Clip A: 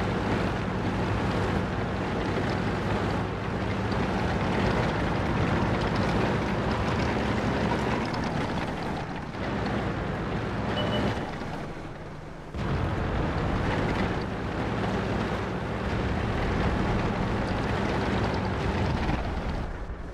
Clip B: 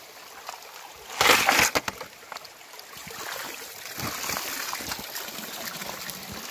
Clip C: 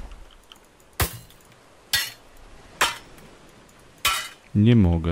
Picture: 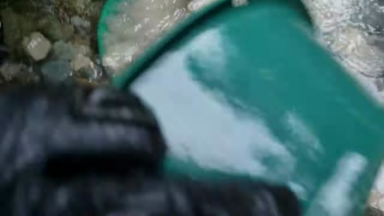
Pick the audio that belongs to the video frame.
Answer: B